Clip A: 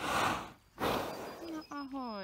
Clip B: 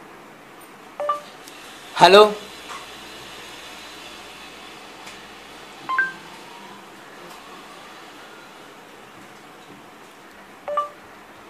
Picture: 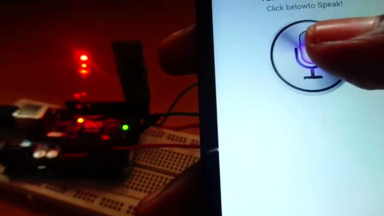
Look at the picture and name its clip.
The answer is B